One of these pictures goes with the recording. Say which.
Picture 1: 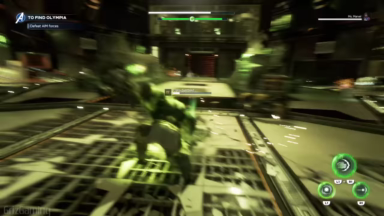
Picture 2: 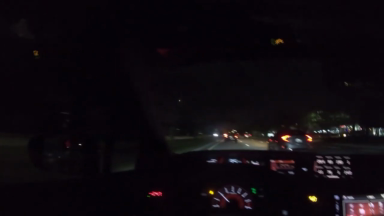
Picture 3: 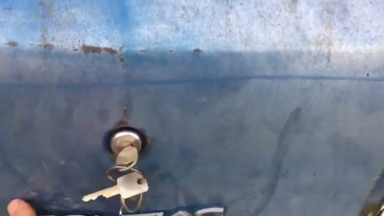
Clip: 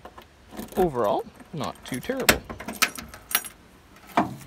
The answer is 3